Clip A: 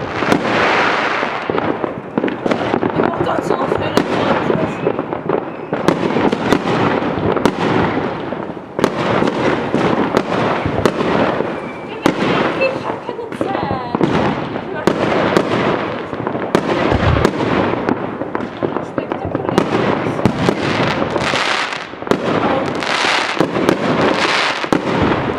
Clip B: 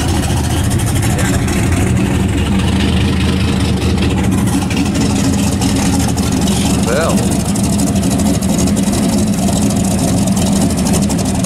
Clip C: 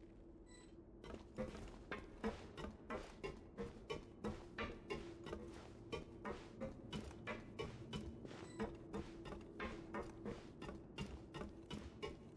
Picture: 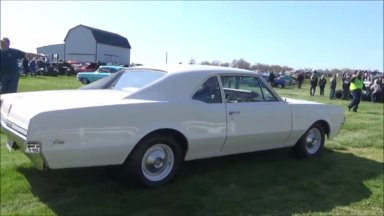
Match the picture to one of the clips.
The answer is B